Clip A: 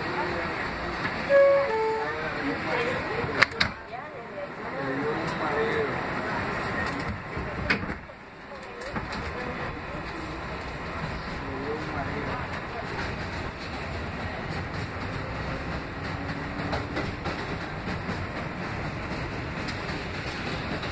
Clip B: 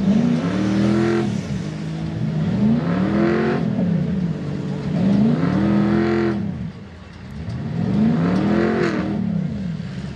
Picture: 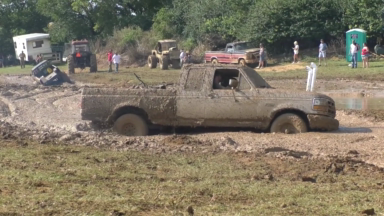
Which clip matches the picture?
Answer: B